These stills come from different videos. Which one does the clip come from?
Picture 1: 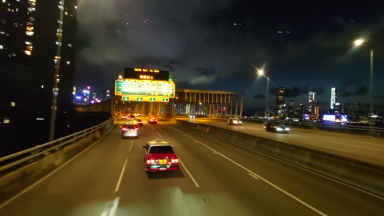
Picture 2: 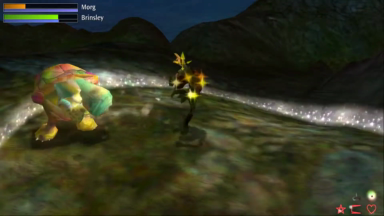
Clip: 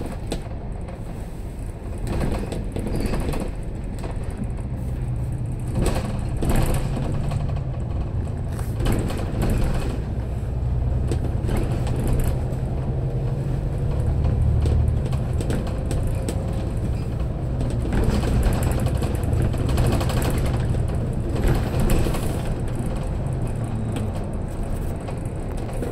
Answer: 1